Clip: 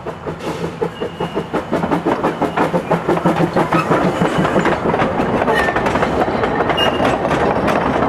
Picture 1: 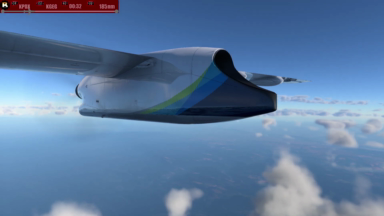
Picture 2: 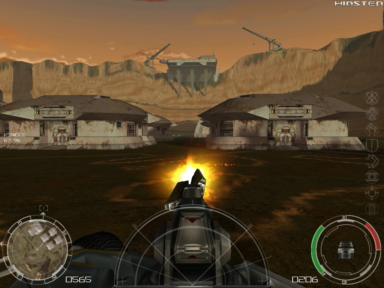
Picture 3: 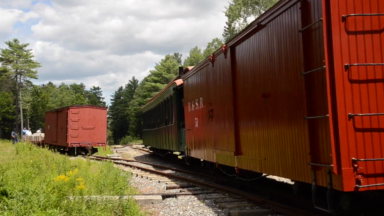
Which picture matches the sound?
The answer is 3